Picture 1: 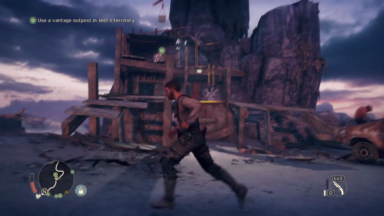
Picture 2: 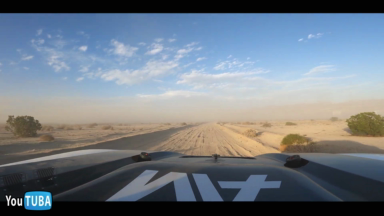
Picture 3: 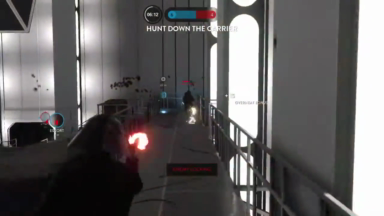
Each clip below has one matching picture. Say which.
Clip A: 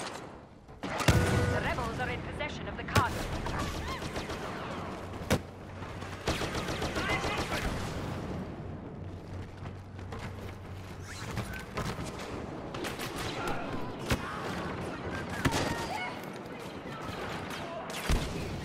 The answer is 3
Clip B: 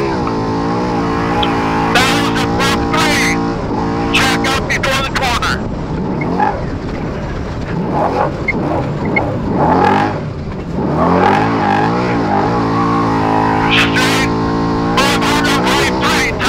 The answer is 2